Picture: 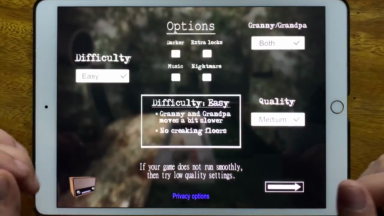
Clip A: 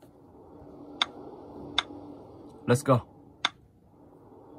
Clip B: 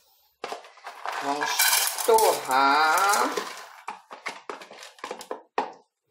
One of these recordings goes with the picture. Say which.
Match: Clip A